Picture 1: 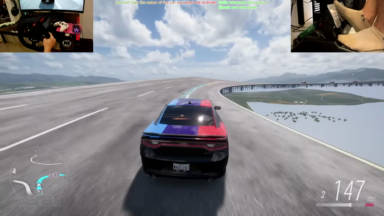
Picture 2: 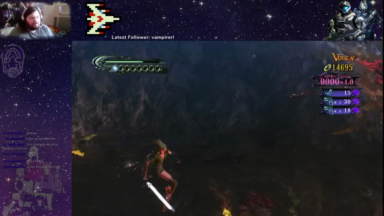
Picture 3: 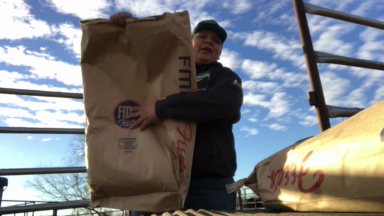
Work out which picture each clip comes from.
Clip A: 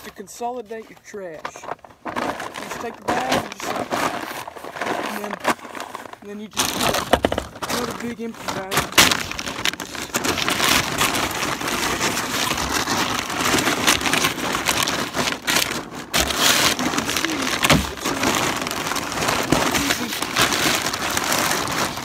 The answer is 3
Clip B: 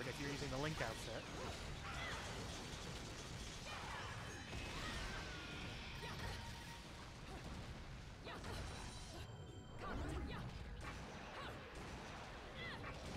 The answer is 2